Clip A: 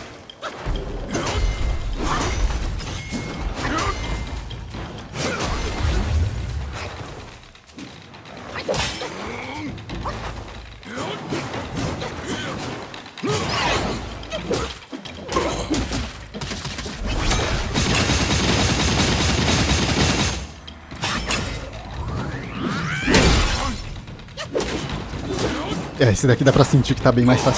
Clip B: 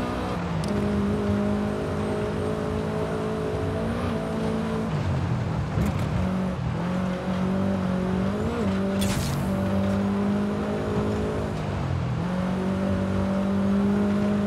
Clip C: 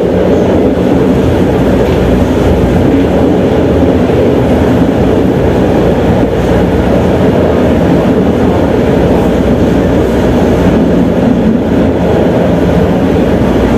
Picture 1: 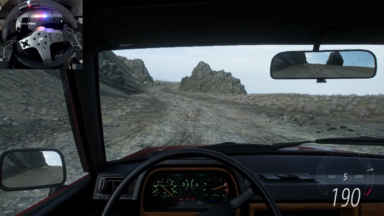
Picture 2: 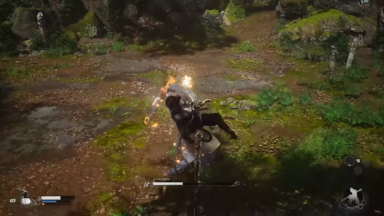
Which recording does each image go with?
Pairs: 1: B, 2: A